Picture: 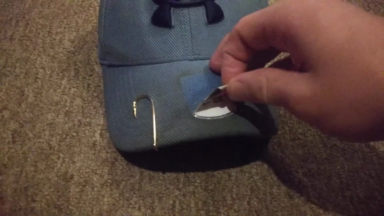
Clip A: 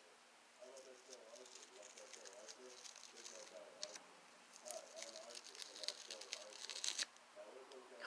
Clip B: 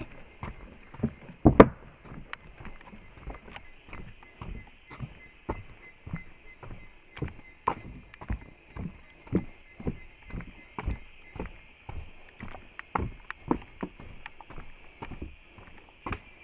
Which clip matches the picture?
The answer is A